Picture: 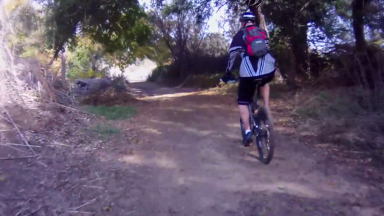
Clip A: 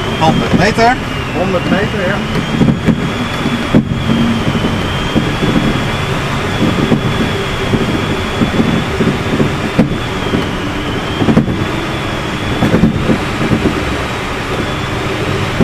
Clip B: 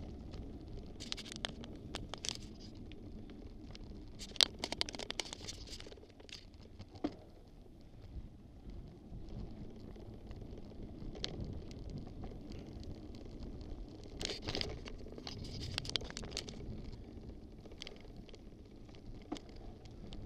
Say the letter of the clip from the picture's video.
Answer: B